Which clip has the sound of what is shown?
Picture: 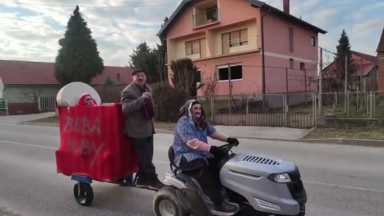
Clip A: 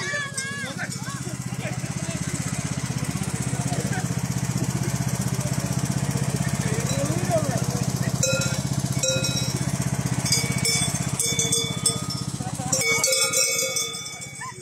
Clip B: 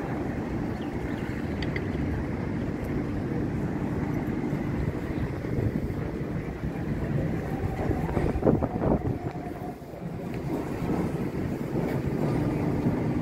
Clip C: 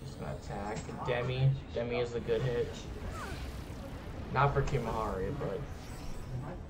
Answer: A